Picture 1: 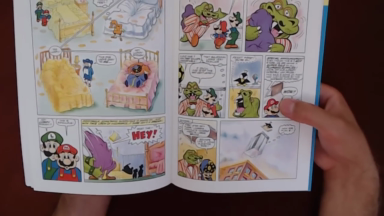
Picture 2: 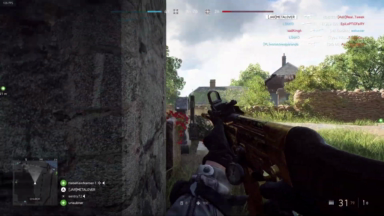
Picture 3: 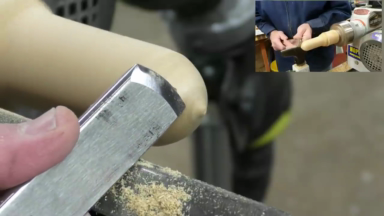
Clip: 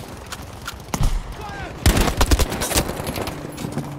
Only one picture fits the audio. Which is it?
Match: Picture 2